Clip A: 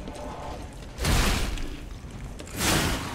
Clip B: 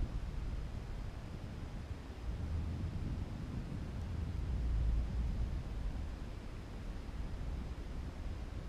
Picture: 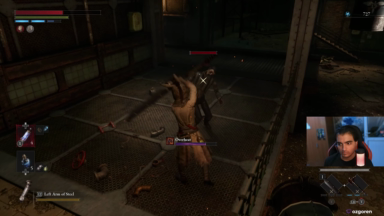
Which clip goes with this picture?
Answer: A